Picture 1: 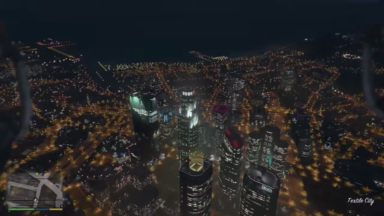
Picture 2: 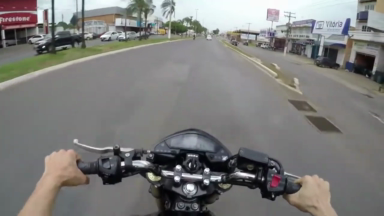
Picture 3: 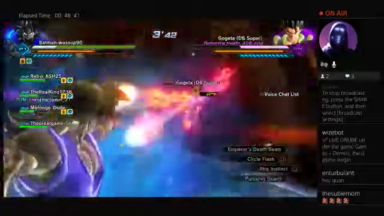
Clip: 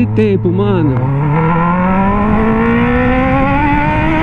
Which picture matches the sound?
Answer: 2